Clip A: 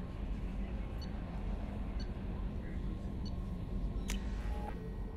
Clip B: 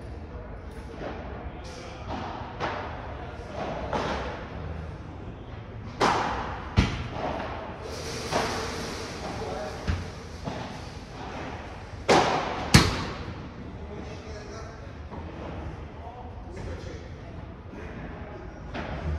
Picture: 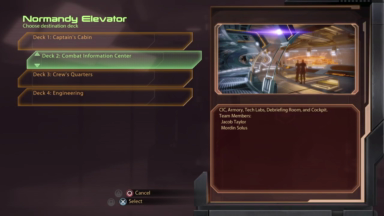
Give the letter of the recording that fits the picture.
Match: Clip A